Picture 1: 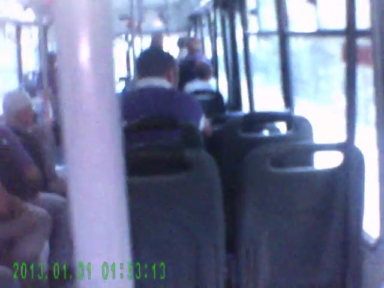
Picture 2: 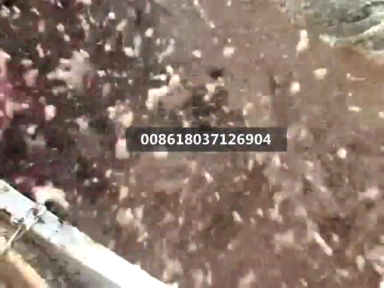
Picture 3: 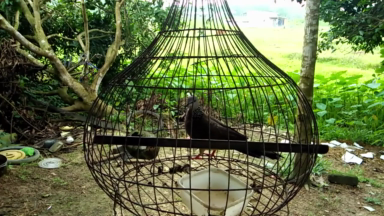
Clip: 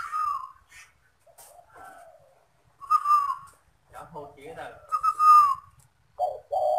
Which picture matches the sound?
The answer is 3